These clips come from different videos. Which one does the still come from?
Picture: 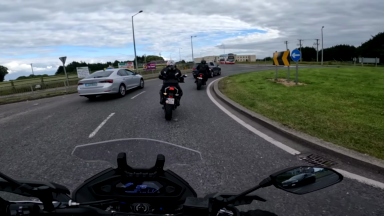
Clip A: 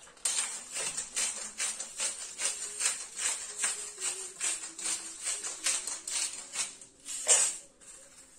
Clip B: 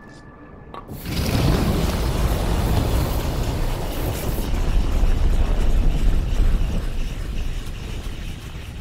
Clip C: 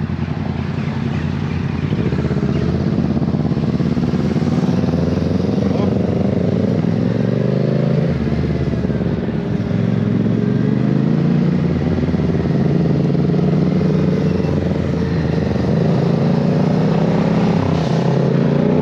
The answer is C